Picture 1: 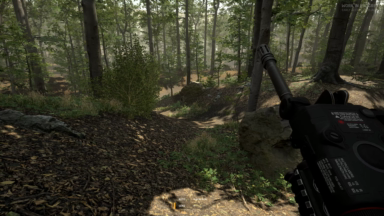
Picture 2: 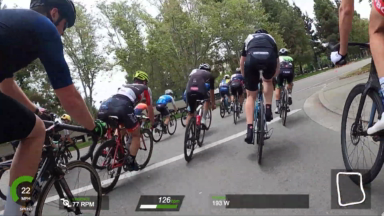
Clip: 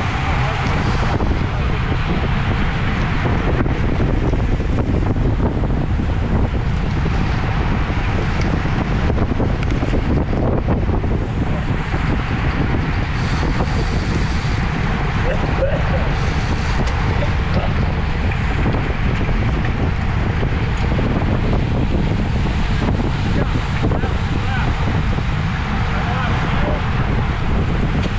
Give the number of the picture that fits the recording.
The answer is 2